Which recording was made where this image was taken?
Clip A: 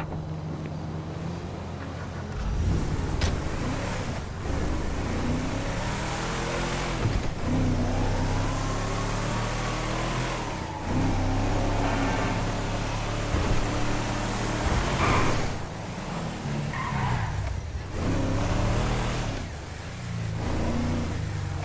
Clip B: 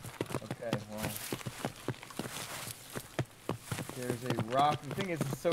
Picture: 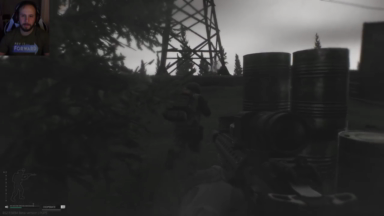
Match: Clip B